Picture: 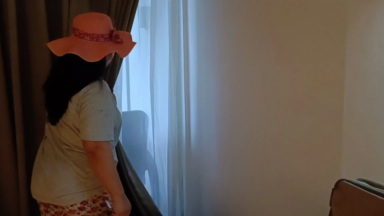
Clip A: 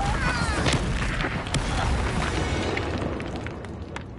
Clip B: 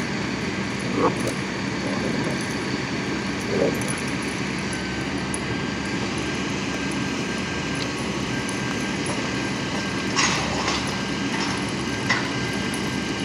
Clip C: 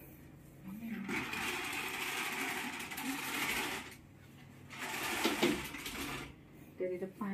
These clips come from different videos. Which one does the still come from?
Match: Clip C